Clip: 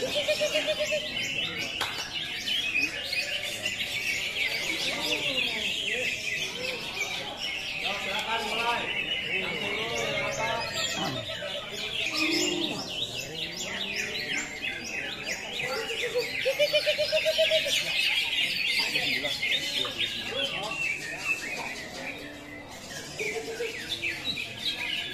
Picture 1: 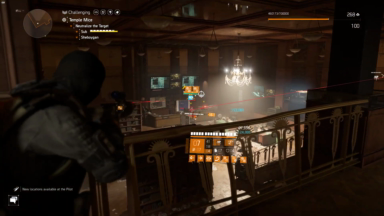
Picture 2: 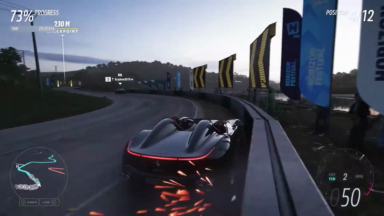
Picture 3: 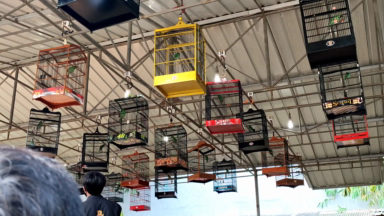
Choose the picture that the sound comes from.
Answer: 3